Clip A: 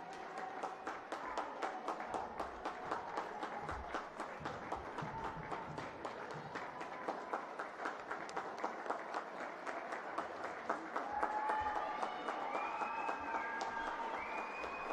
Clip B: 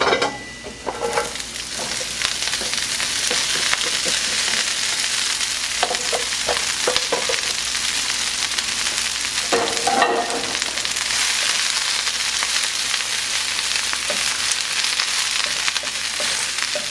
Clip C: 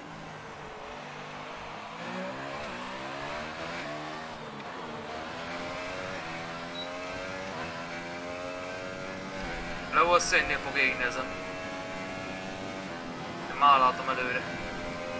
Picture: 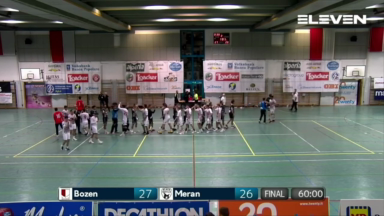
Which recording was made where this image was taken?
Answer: A